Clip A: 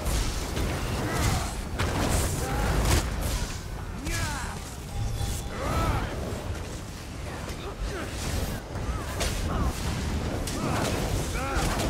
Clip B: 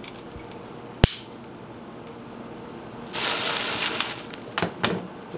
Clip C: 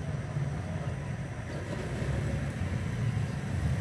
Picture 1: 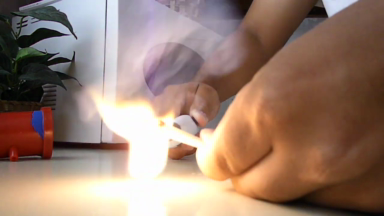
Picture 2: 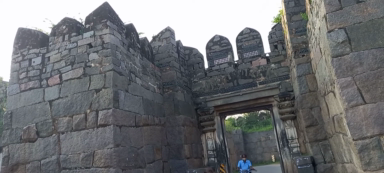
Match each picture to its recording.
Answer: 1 B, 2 C